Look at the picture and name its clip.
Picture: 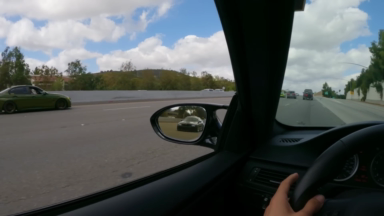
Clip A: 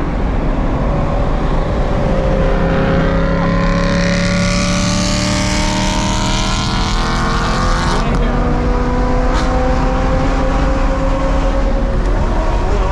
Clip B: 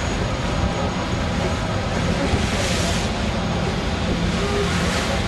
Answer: A